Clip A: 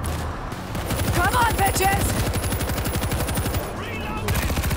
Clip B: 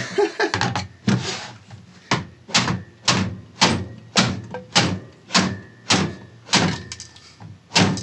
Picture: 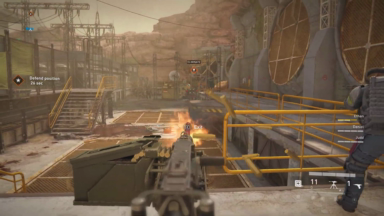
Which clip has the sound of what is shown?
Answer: A